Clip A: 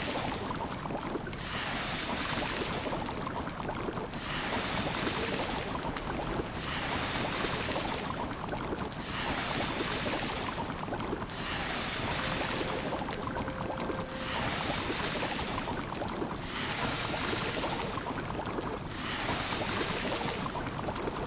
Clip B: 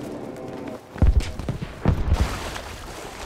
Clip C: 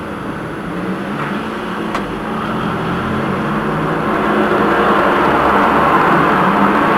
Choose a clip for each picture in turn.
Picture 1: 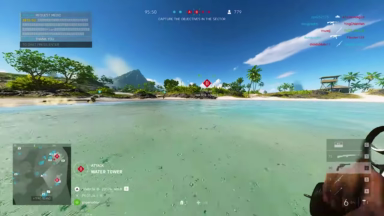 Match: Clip B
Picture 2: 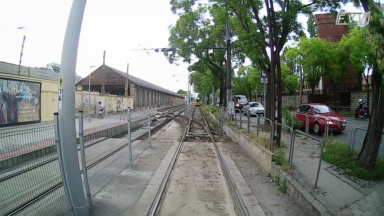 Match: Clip C